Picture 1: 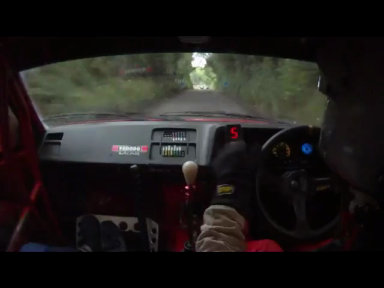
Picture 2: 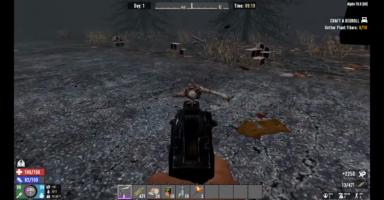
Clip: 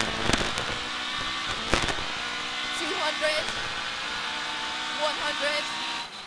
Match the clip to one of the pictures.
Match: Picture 1